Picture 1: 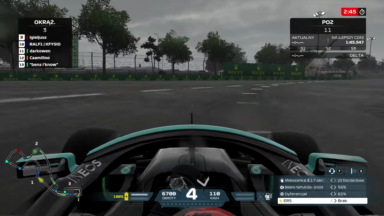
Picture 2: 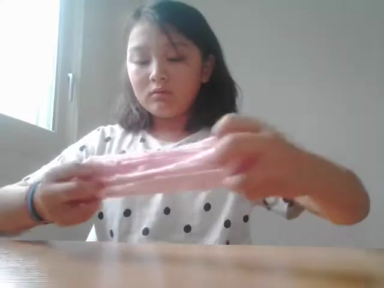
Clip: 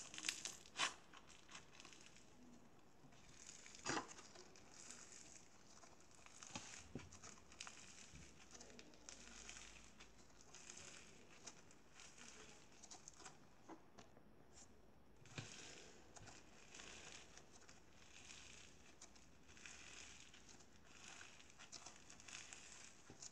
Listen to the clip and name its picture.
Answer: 2